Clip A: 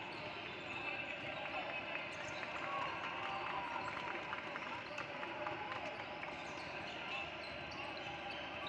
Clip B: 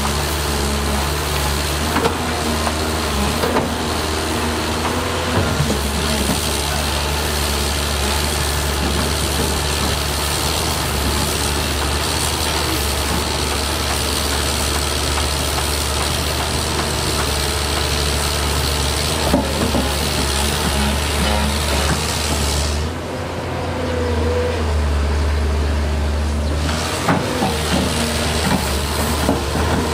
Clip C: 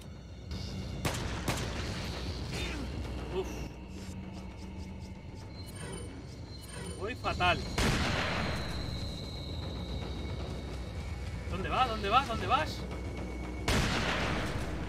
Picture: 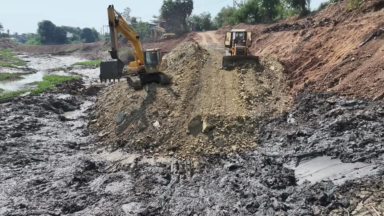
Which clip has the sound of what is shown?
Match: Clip B